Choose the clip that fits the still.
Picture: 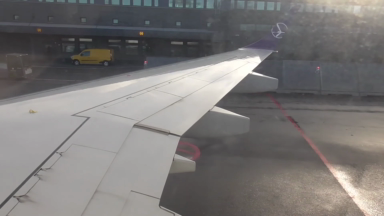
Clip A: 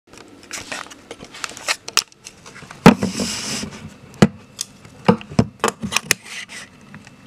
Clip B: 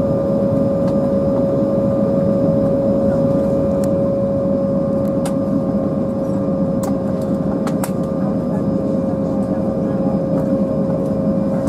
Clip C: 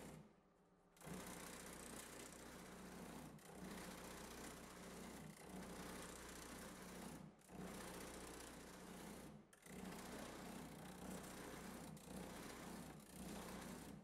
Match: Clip B